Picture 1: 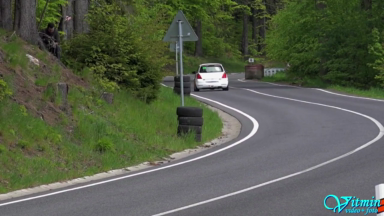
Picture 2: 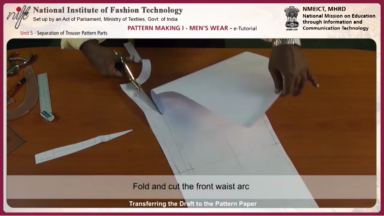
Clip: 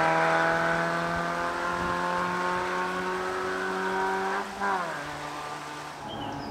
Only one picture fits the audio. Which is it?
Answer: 1